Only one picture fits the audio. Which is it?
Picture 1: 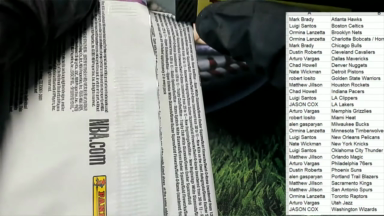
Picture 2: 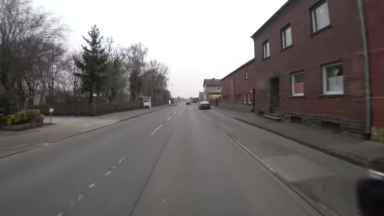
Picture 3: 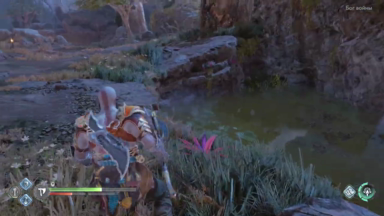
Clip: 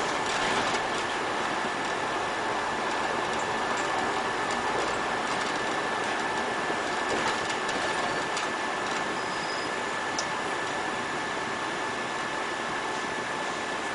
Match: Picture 2